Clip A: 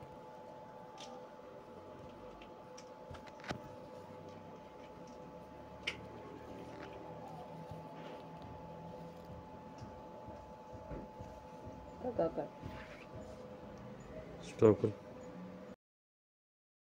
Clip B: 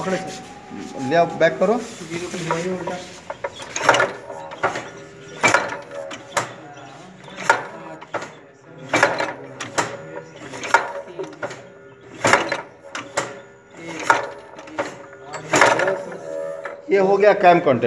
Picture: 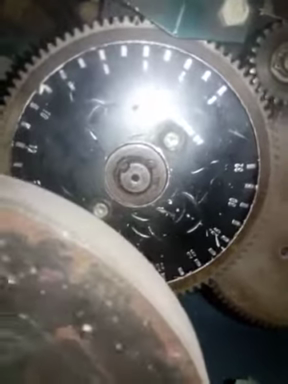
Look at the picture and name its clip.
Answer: B